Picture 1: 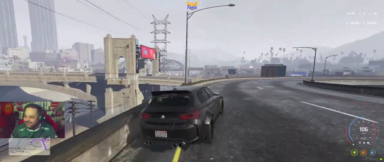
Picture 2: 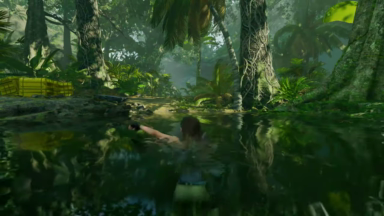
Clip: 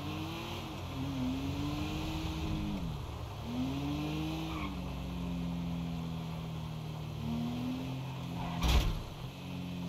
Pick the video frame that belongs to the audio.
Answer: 1